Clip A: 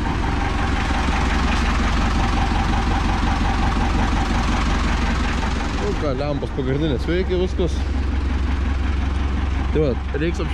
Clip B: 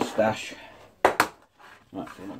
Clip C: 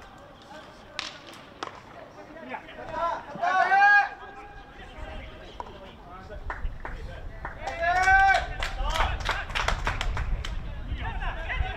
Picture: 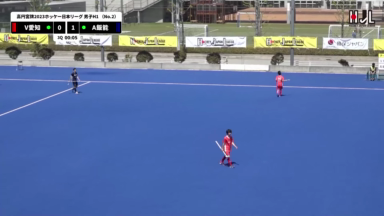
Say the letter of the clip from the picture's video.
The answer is C